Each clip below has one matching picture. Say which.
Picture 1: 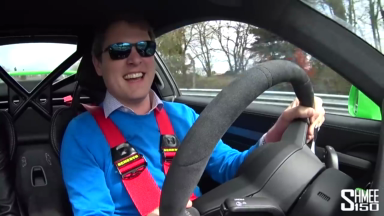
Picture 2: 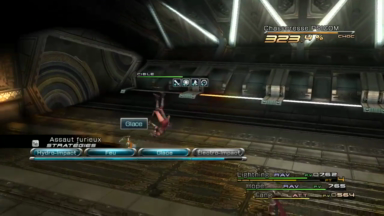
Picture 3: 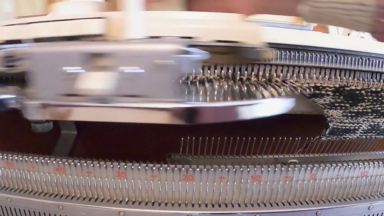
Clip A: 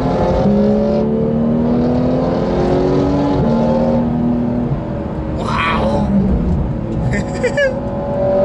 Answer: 1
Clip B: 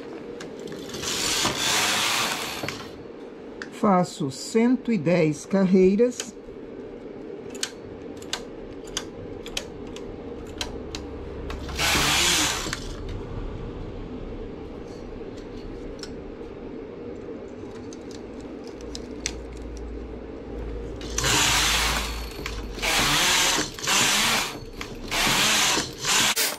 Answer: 3